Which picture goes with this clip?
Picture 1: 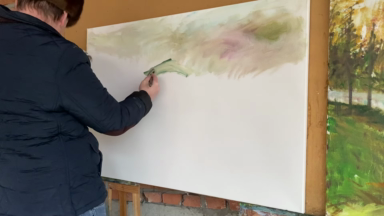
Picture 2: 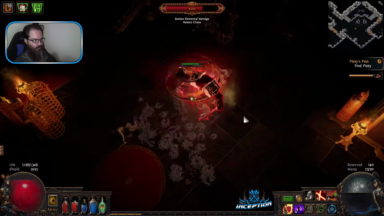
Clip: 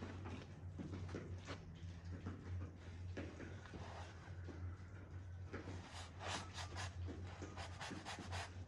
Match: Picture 1